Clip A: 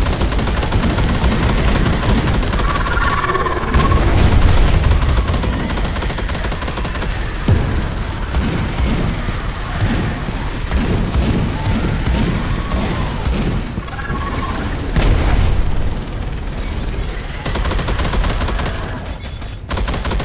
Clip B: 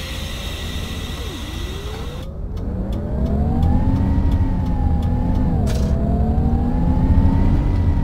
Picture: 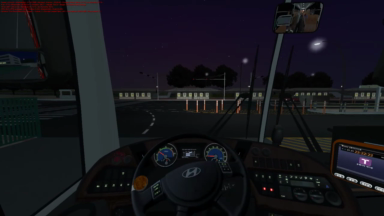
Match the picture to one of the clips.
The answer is B